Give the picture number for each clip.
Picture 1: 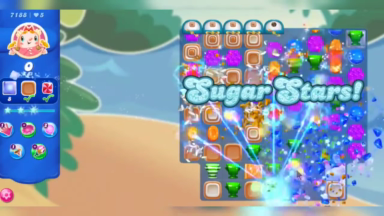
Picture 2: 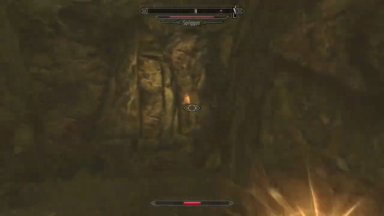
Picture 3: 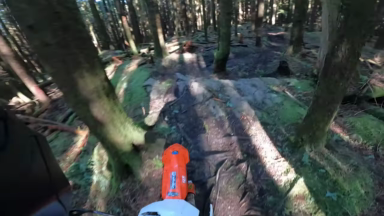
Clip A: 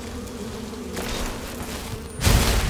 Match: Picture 2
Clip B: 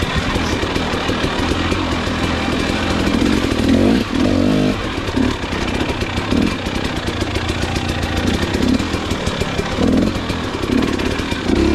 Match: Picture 3